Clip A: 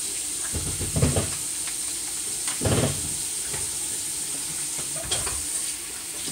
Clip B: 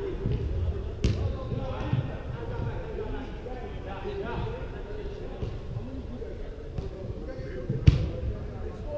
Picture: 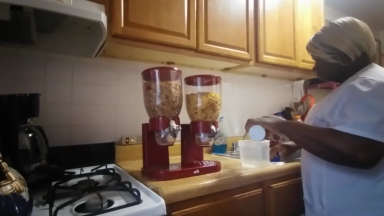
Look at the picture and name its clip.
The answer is A